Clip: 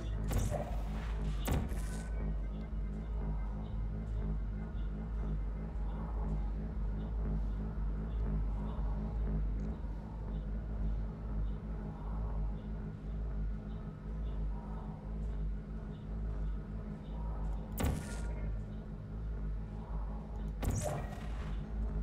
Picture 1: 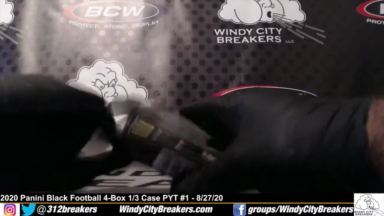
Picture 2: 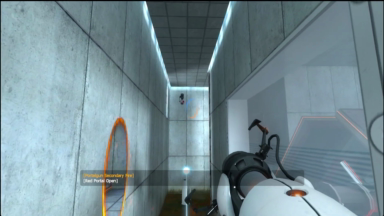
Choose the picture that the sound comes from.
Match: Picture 2